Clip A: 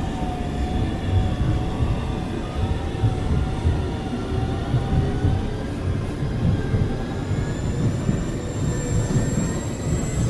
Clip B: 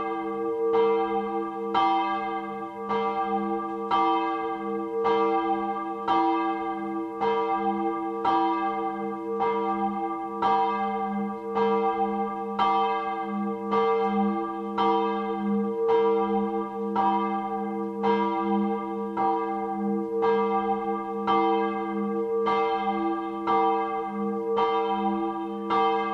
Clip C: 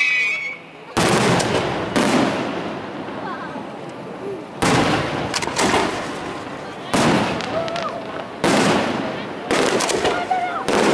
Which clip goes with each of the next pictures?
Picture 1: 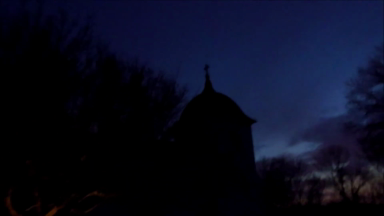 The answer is B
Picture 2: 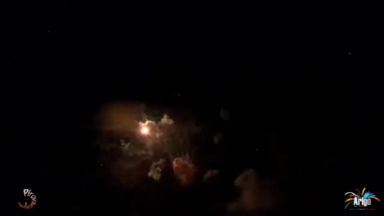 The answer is C